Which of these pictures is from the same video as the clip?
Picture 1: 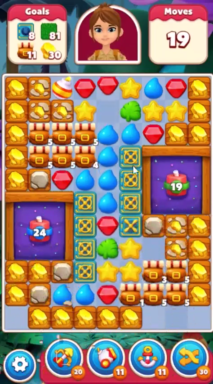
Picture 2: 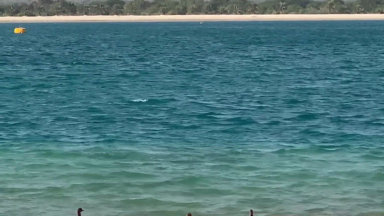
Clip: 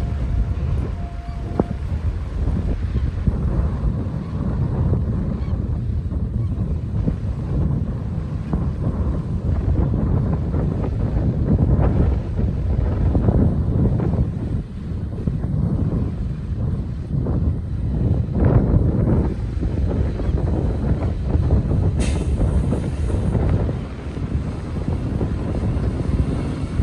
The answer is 2